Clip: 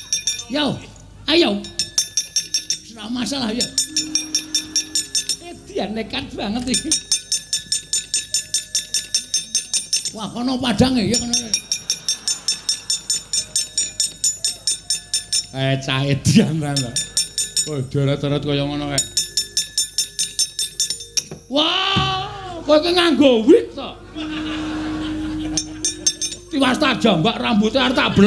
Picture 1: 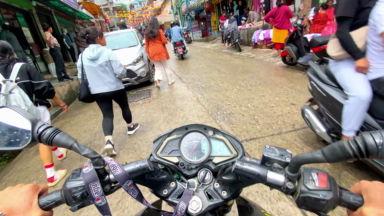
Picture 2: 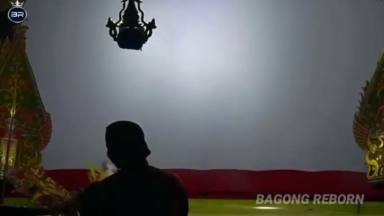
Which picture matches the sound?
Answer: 2